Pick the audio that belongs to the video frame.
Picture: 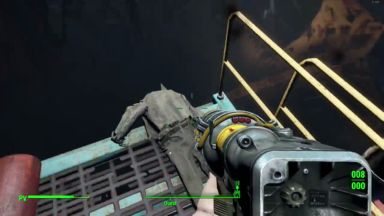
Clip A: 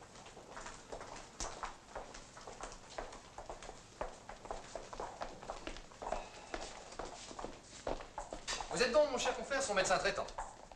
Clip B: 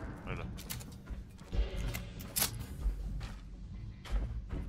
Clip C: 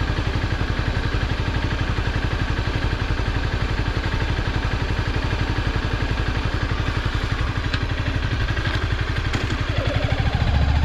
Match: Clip B